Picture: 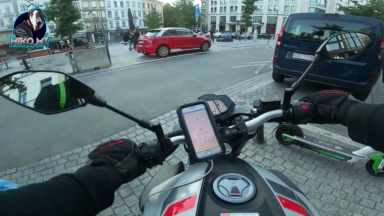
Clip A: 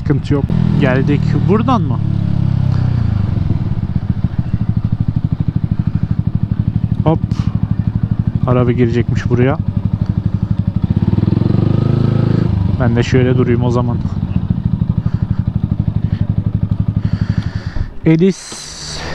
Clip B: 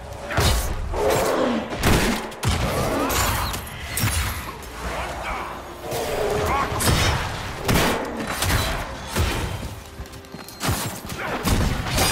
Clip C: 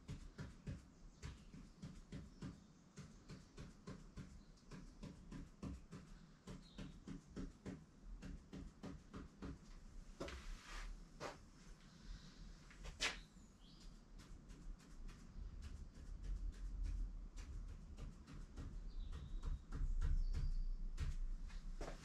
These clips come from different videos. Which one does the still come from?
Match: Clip A